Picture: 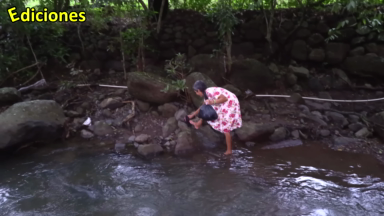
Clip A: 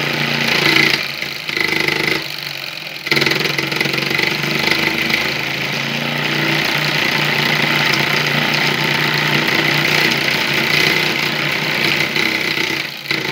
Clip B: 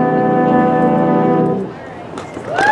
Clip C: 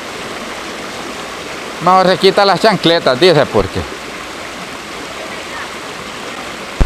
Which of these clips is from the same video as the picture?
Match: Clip C